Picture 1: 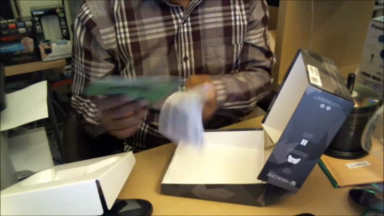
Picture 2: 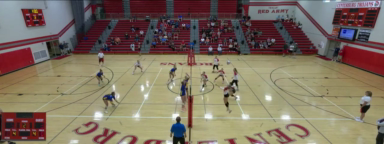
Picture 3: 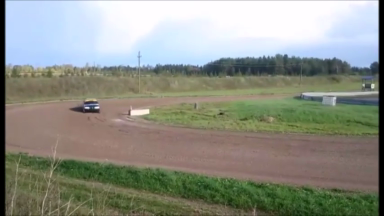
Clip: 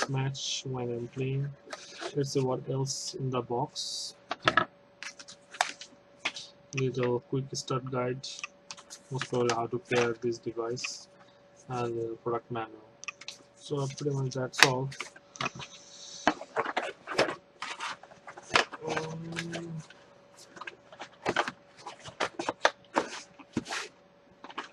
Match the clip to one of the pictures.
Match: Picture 1